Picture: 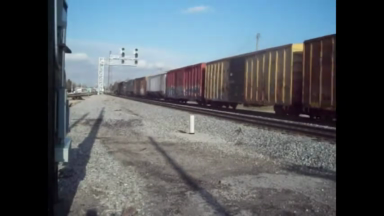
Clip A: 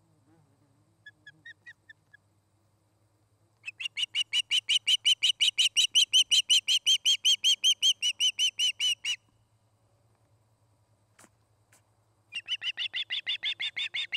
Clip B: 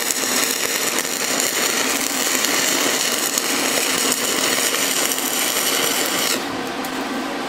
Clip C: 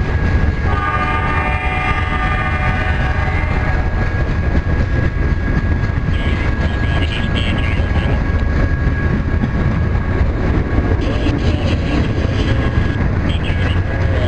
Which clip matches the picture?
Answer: C